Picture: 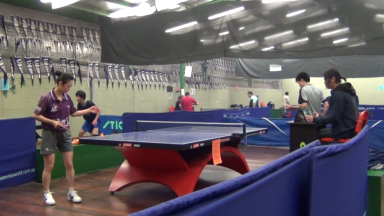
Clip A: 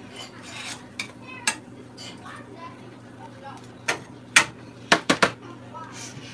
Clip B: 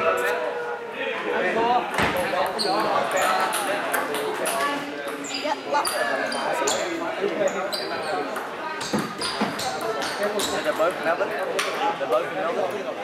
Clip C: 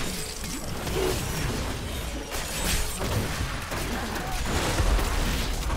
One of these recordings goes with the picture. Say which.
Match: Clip B